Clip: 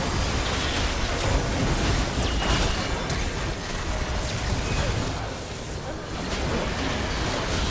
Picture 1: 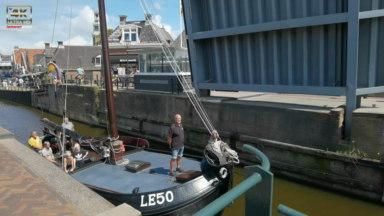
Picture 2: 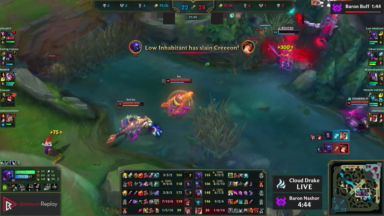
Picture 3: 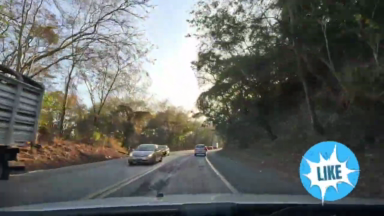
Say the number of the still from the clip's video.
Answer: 2